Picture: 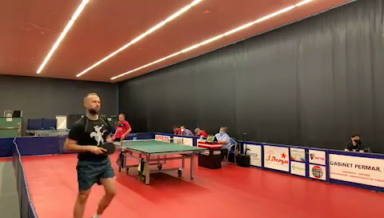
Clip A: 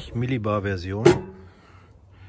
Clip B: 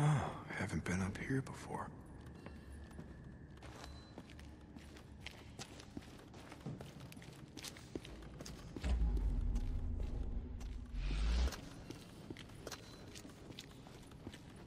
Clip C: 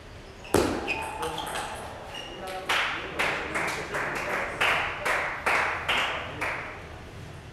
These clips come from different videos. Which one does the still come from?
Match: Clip C